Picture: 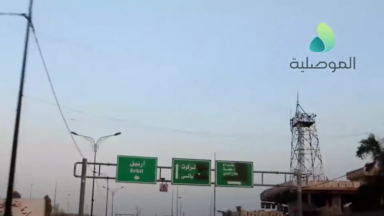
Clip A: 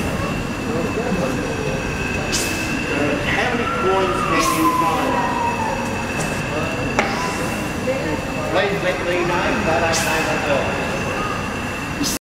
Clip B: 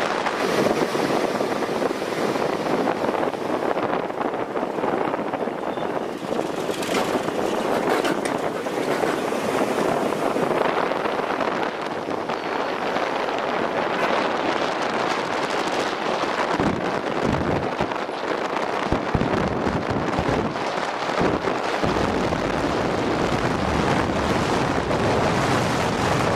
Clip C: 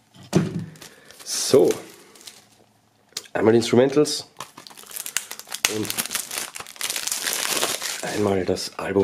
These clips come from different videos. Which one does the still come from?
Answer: B